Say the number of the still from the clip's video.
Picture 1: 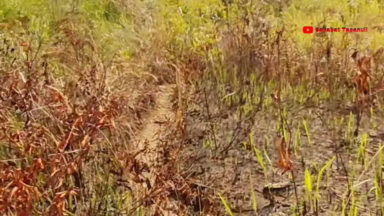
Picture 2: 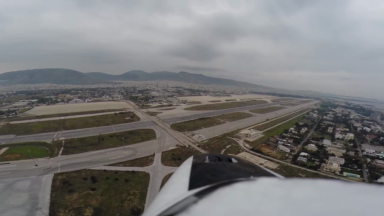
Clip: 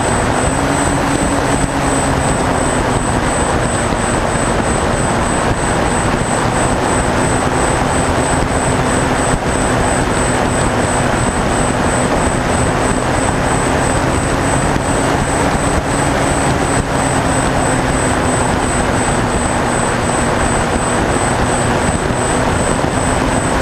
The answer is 2